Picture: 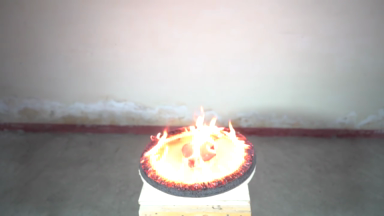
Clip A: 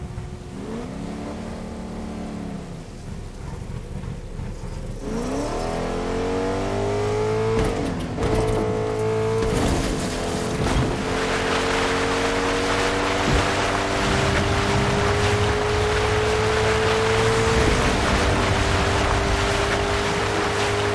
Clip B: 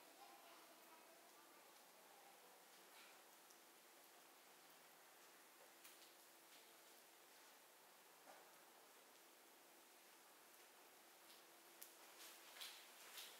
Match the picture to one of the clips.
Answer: B